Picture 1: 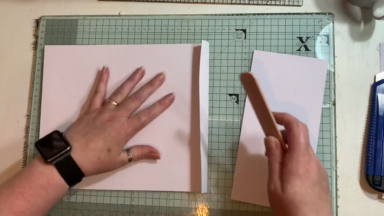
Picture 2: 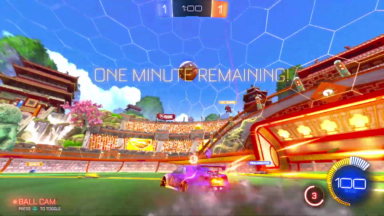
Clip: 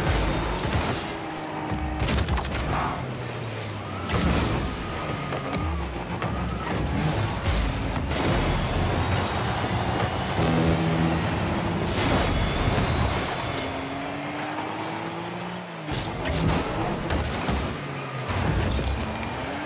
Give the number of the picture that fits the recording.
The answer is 2